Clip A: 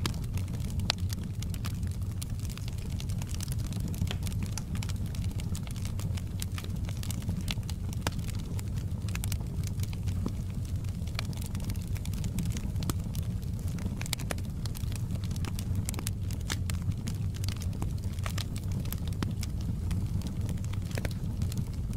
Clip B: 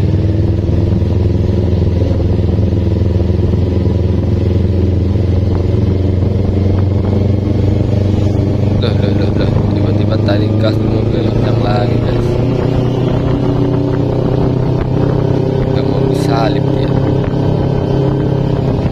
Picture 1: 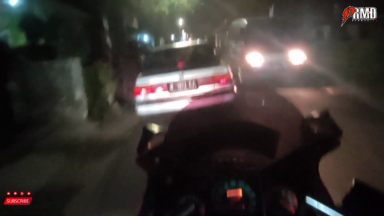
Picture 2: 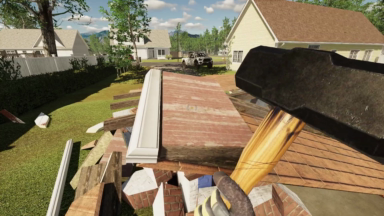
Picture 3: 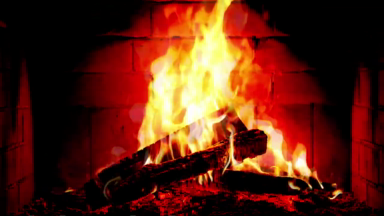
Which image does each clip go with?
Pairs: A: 3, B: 1